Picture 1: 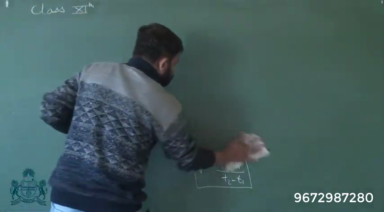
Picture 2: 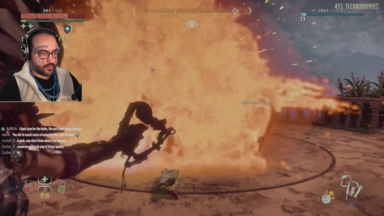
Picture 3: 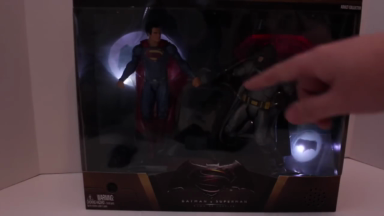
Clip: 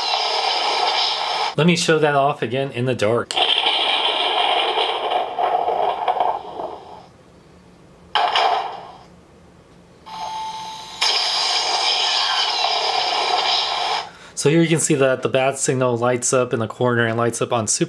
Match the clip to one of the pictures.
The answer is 3